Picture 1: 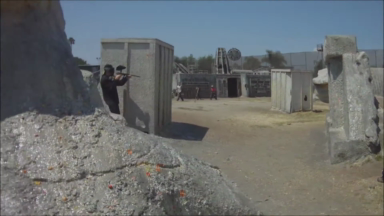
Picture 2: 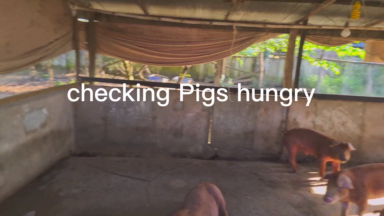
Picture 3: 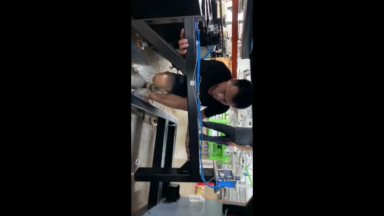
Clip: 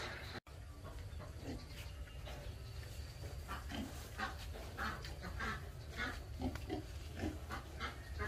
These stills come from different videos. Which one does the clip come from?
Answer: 2